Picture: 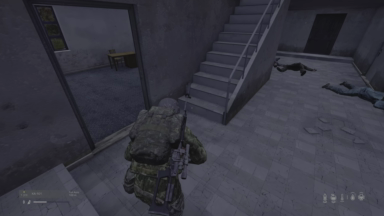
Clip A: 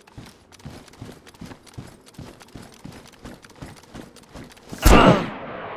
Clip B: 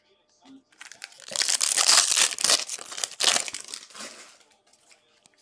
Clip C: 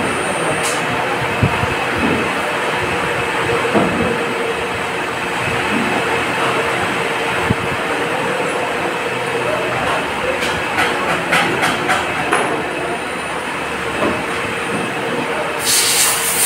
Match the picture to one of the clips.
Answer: A